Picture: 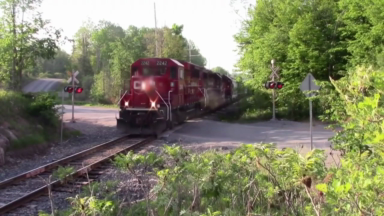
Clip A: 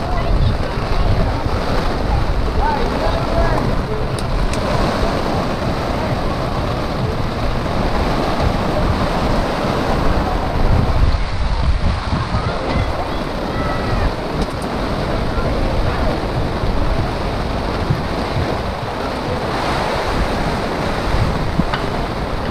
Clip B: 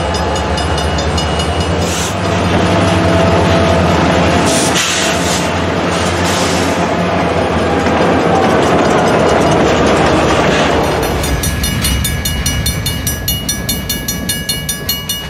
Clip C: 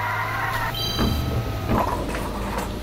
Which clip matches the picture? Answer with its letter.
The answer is B